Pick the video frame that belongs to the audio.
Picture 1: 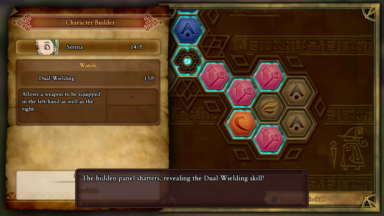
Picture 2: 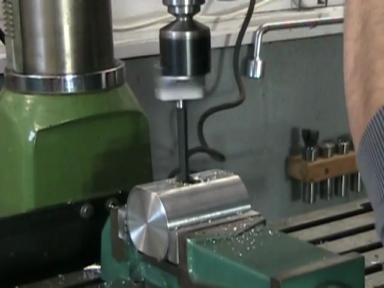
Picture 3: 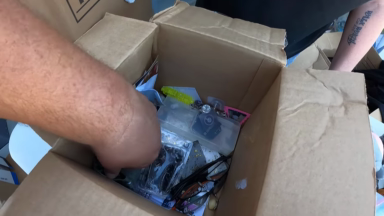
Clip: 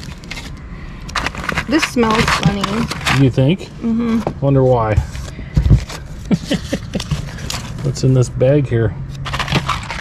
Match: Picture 3